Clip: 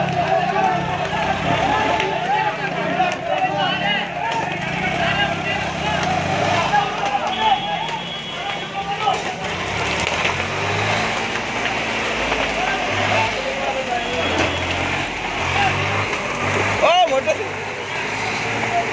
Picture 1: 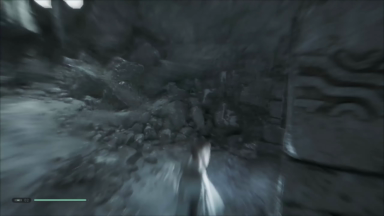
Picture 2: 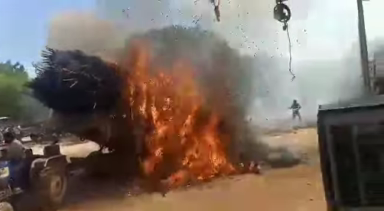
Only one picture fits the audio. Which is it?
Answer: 2